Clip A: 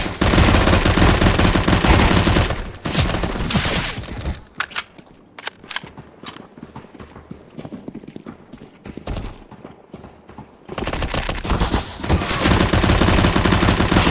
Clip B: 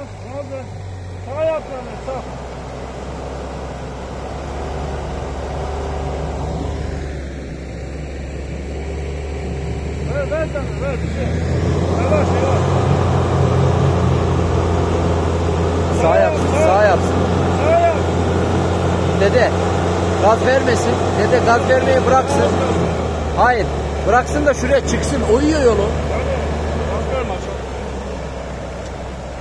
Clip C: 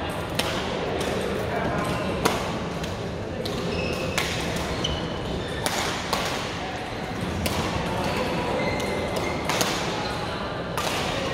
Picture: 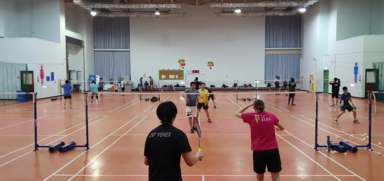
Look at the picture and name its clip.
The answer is C